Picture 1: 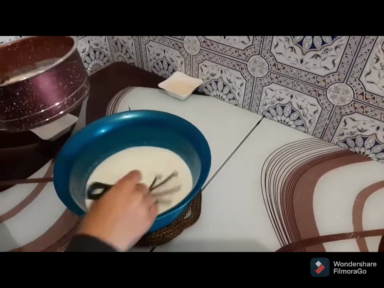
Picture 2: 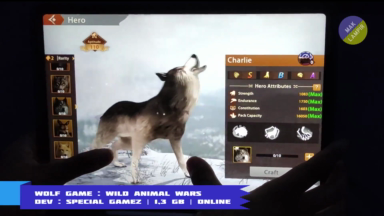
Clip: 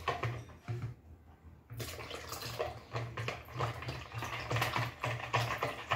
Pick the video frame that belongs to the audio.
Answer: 1